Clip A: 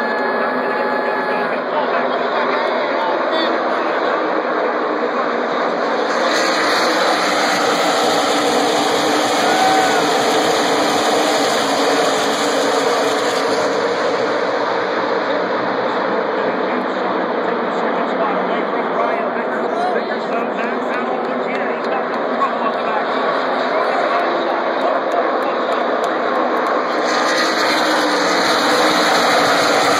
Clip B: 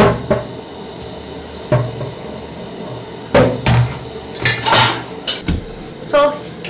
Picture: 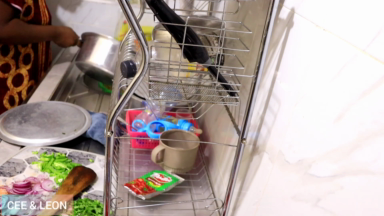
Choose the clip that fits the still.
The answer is B